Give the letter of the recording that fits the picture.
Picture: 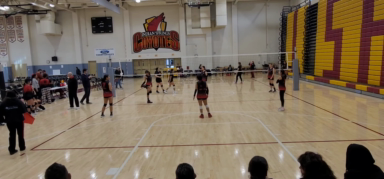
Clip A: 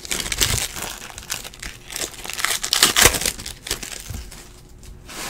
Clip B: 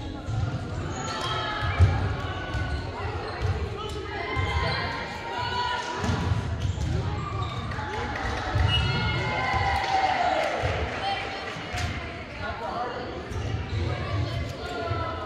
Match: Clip B